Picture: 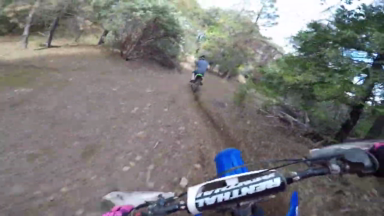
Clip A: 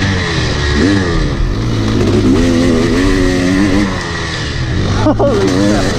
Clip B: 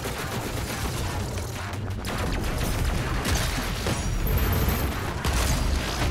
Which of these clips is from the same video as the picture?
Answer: A